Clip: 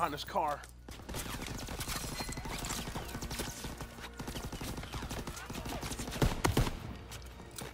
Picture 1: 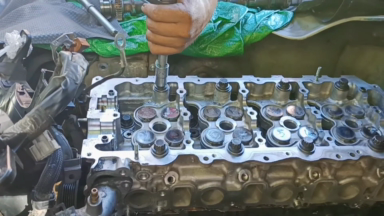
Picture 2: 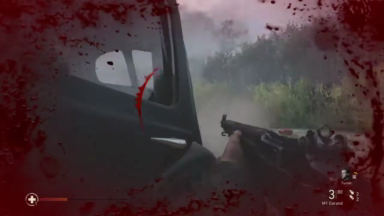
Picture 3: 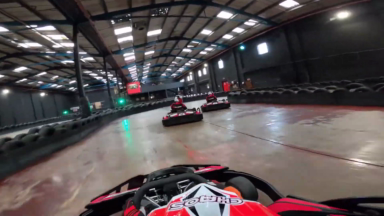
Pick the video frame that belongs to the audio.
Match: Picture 2